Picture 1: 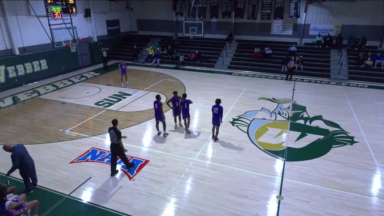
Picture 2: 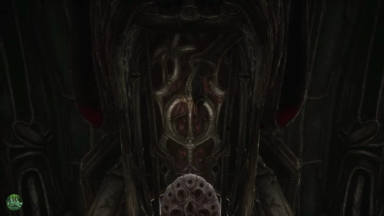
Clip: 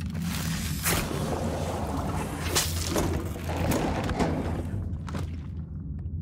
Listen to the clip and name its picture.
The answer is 2